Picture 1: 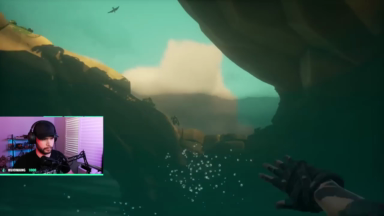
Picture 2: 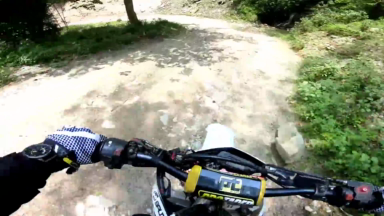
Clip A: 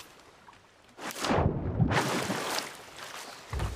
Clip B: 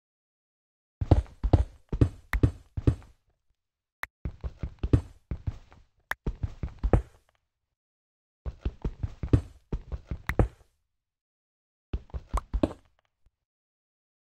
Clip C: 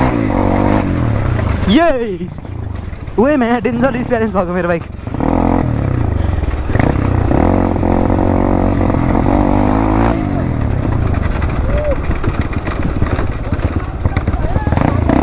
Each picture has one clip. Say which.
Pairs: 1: A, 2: C